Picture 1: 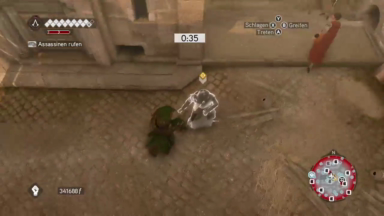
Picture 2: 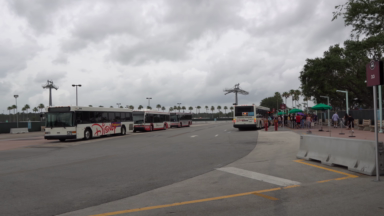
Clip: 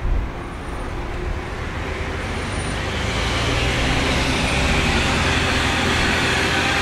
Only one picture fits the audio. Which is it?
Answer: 2